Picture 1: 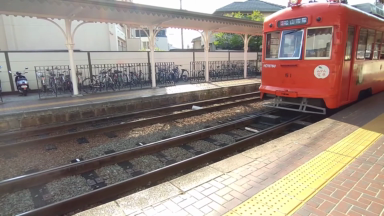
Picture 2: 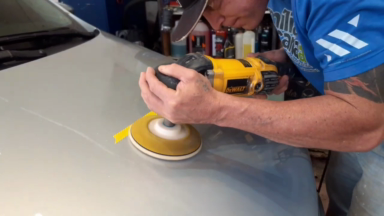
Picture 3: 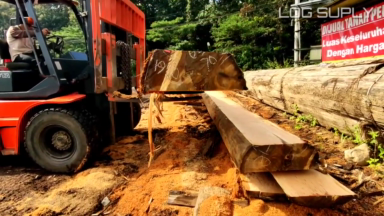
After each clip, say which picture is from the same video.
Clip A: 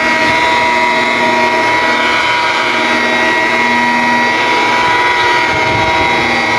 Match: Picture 2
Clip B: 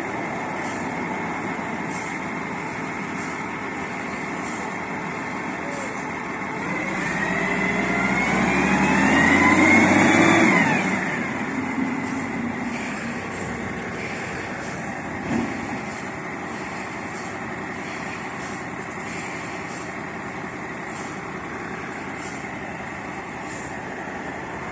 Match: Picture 3